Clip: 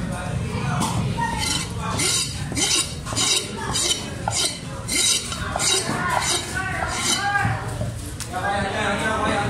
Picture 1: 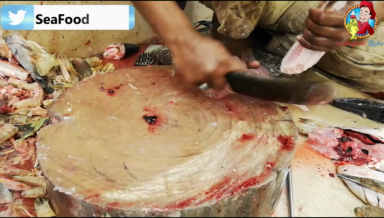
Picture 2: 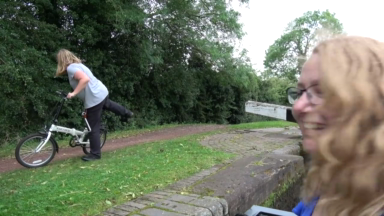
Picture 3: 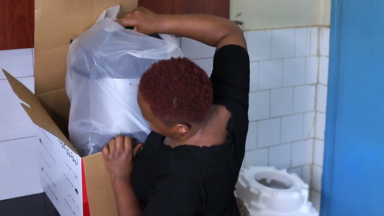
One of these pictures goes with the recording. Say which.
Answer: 1